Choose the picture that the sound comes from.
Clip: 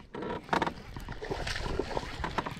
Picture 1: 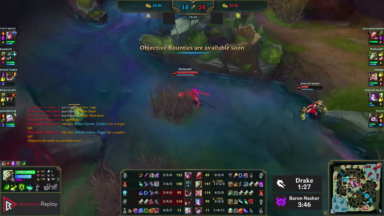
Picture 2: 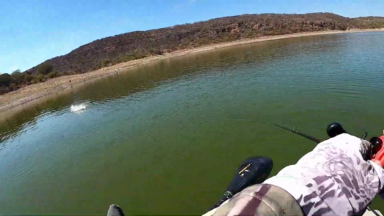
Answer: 2